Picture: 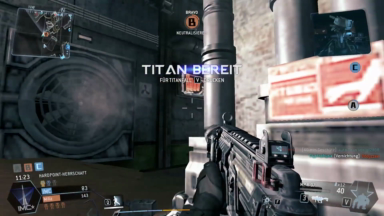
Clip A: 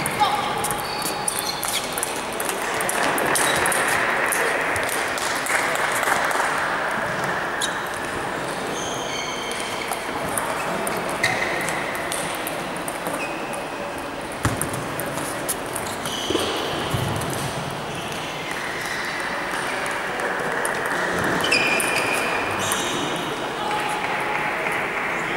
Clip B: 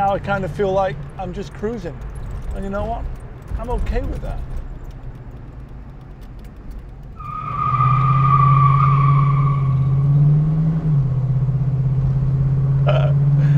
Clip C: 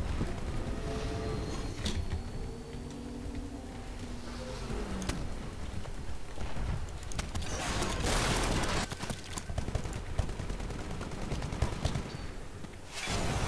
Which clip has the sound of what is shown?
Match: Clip C